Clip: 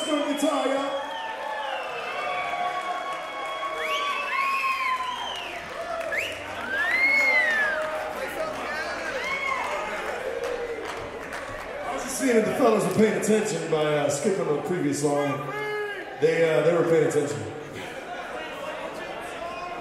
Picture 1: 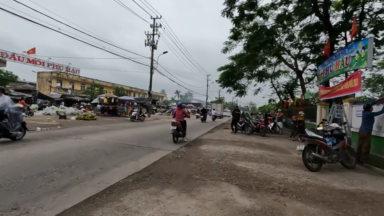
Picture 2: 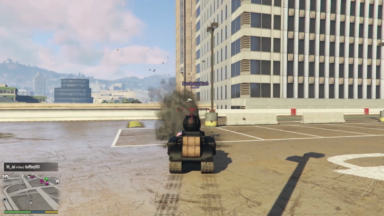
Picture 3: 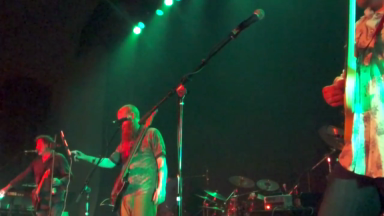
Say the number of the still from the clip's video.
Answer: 3